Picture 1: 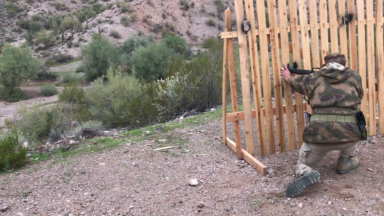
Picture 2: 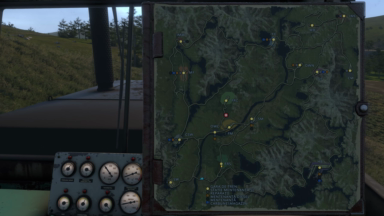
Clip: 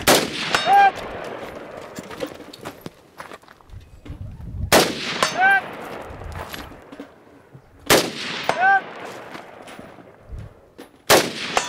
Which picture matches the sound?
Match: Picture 1